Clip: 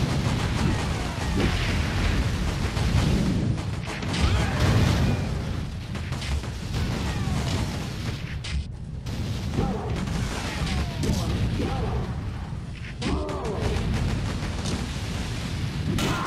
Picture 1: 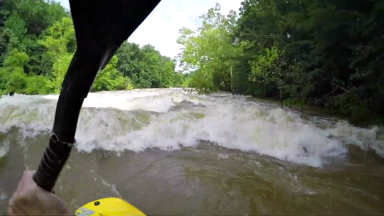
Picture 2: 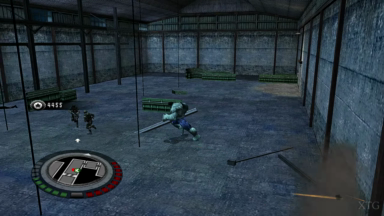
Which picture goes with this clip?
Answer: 2